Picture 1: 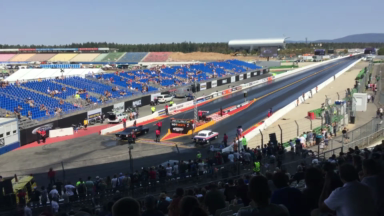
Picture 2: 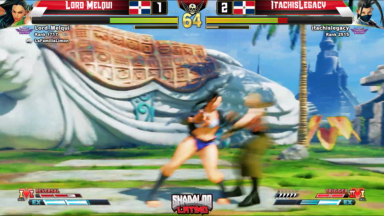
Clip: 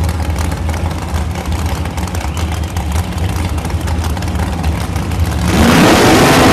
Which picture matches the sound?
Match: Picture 1